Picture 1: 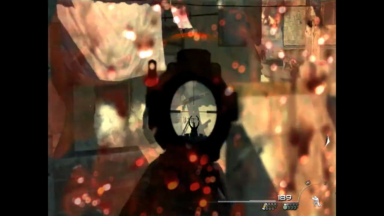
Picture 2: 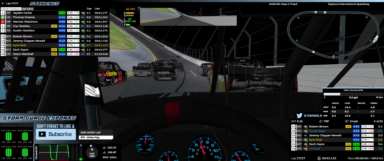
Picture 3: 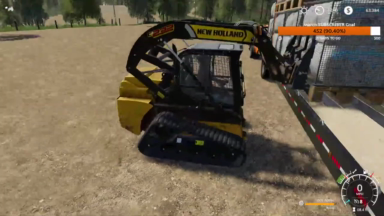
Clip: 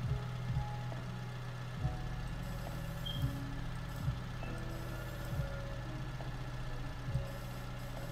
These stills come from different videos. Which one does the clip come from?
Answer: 3